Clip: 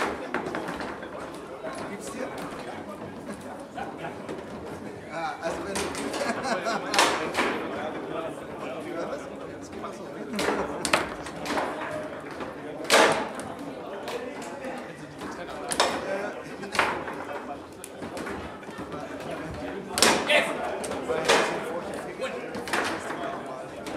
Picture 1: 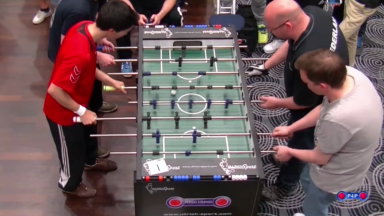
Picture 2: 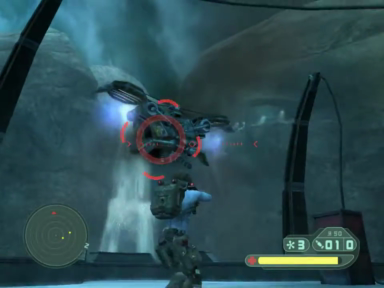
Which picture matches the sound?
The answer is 1